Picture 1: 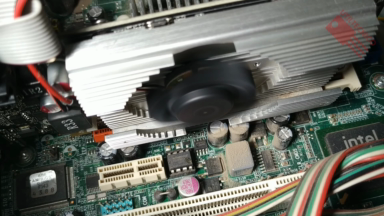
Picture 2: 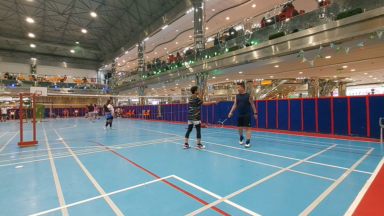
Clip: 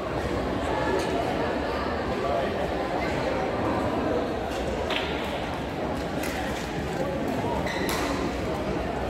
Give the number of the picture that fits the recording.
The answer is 2